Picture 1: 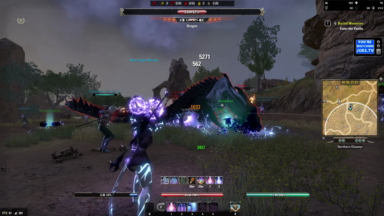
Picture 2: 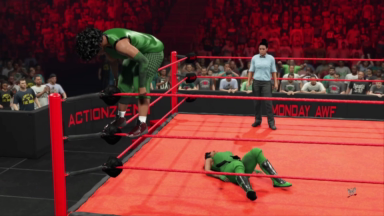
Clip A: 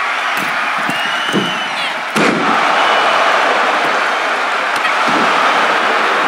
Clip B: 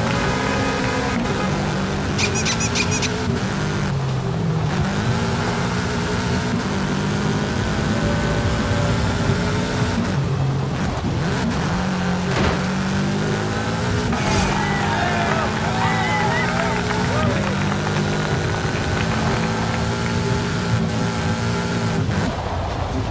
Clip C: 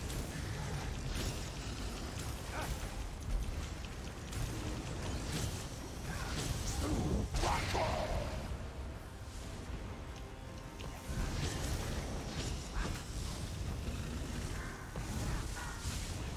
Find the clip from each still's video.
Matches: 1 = C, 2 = A